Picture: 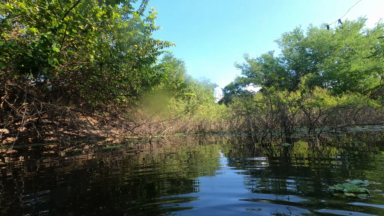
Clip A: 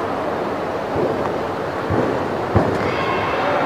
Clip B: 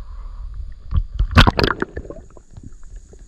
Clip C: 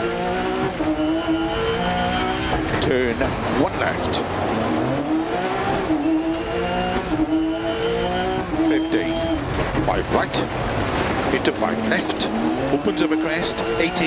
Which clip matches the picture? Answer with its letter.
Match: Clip B